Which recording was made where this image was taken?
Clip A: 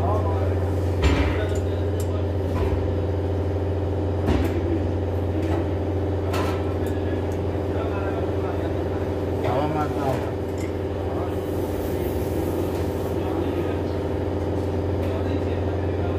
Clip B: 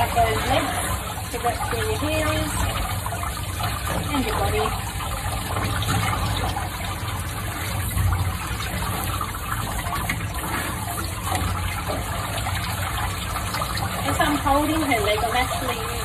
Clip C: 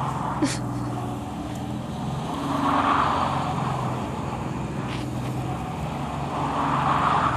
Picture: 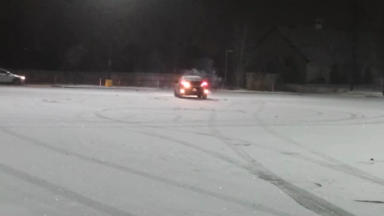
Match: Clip C